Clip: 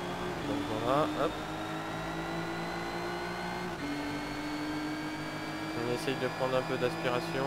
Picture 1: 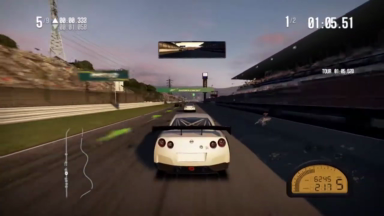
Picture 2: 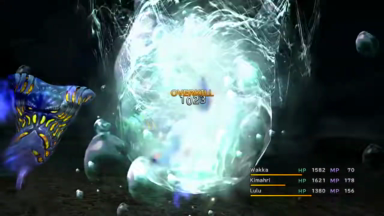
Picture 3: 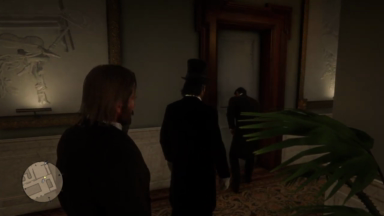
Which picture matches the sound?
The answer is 1